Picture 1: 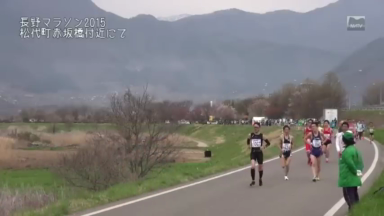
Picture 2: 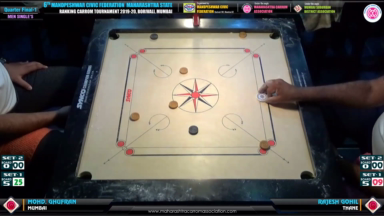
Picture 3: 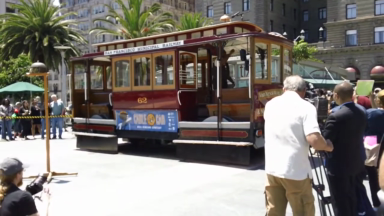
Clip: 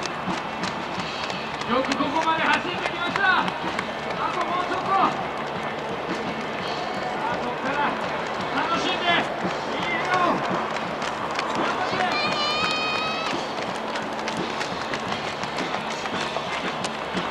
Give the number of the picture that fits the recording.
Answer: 1